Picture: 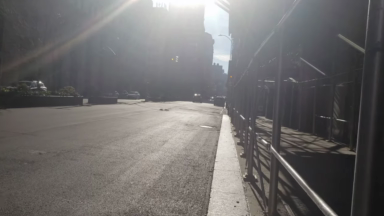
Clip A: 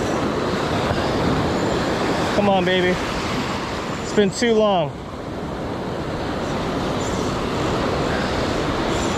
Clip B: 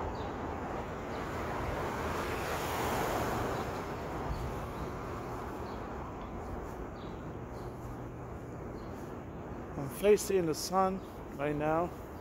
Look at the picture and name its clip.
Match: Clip B